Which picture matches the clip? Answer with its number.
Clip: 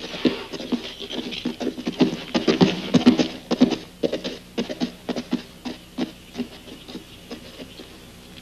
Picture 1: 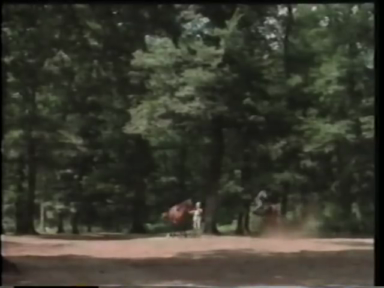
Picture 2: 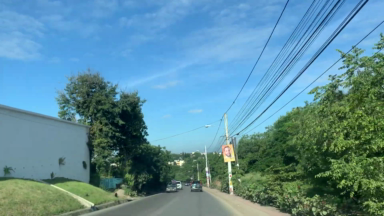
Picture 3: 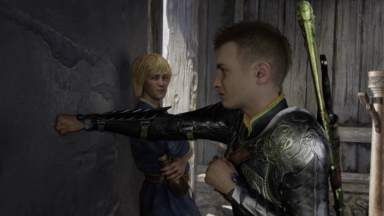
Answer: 1